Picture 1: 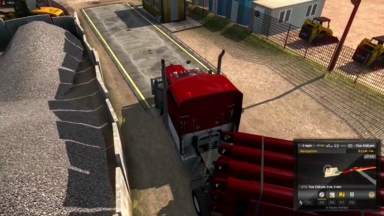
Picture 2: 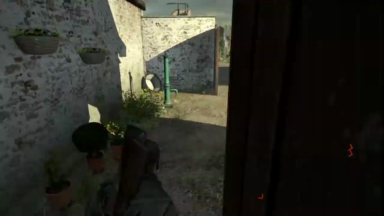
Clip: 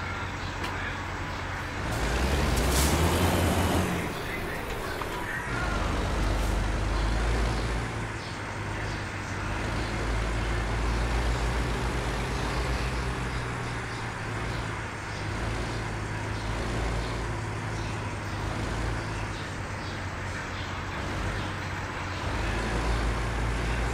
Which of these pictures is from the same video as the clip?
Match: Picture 1